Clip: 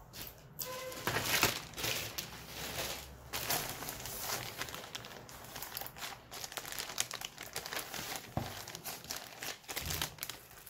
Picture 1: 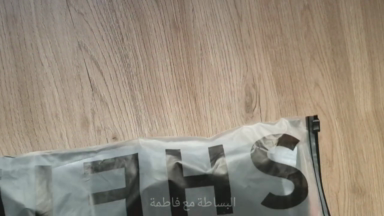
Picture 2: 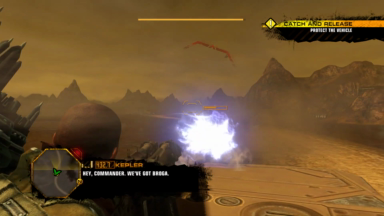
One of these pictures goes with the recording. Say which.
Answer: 1